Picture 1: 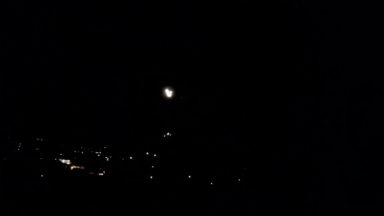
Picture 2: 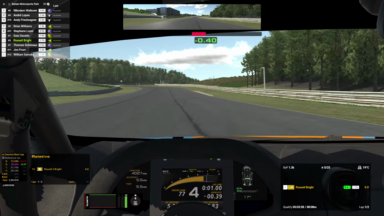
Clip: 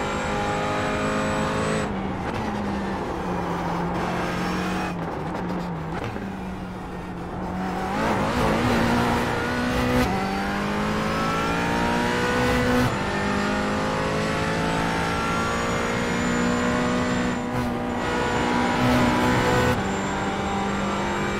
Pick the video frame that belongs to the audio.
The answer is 2